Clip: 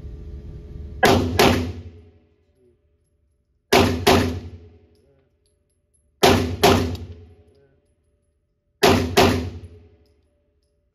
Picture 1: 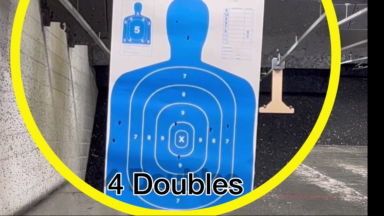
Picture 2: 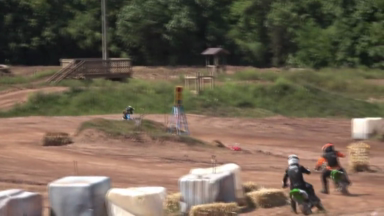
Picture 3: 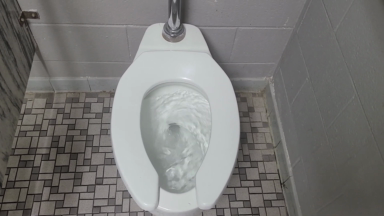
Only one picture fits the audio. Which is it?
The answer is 1